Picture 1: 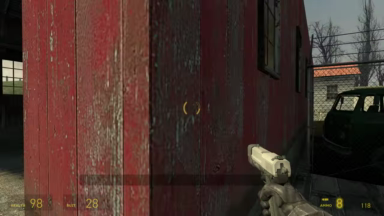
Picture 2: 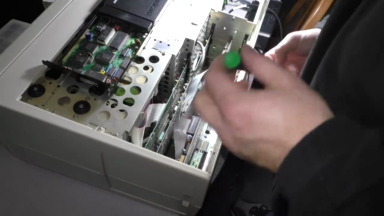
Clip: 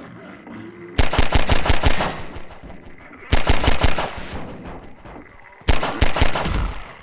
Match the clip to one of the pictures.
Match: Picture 1